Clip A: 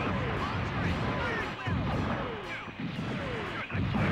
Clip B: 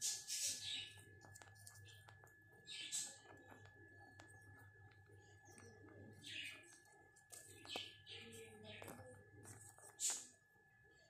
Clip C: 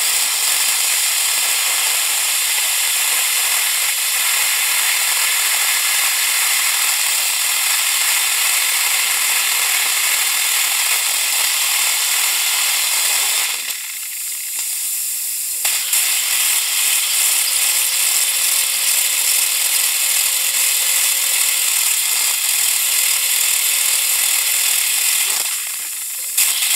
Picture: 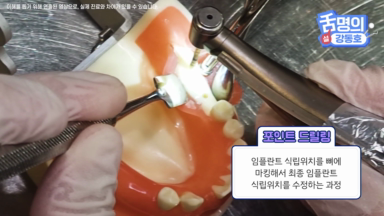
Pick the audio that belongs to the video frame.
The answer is C